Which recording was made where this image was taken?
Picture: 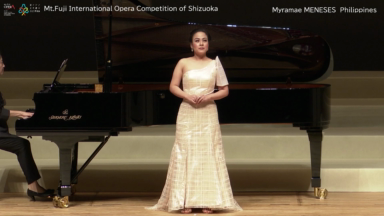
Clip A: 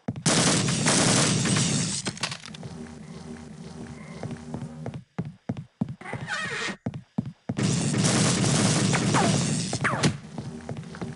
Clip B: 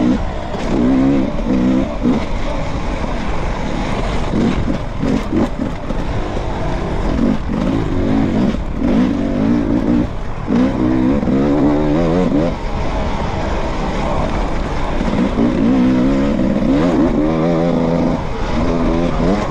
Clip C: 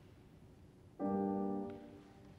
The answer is C